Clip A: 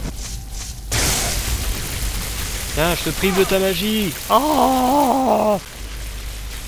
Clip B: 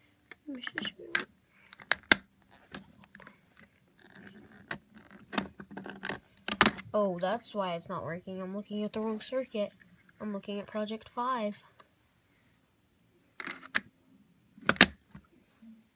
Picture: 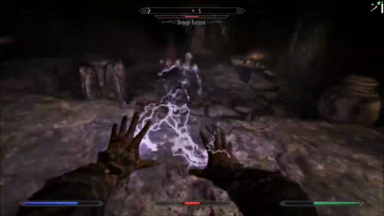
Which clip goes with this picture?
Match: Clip A